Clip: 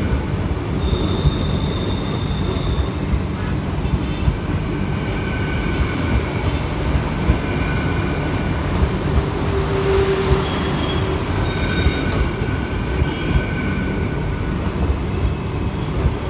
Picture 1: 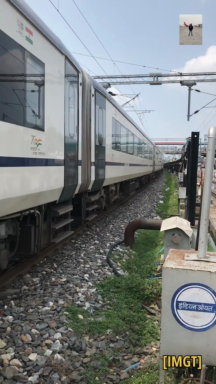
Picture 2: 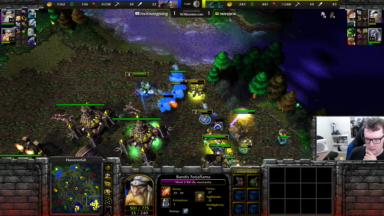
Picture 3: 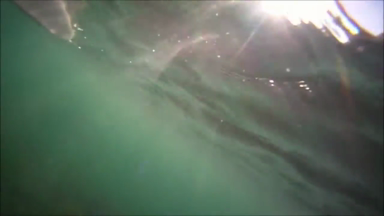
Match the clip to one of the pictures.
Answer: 1